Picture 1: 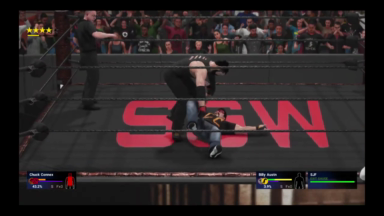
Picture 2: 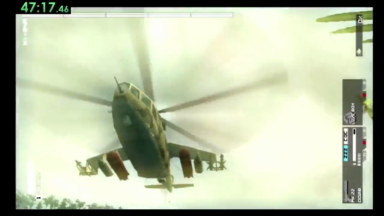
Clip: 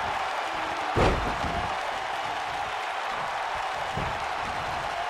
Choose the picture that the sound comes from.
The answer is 1